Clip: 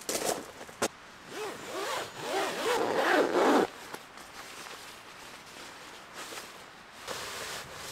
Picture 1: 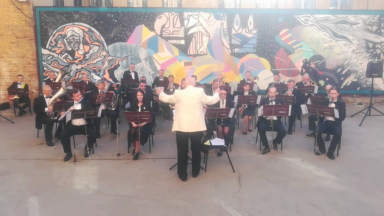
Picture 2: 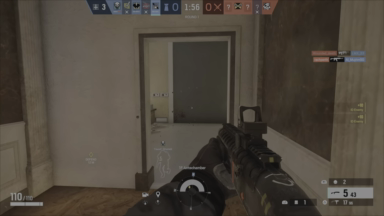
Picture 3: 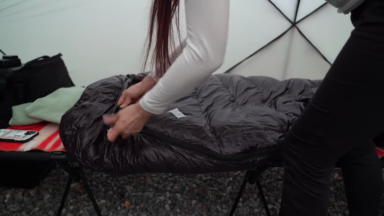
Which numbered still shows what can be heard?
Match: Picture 3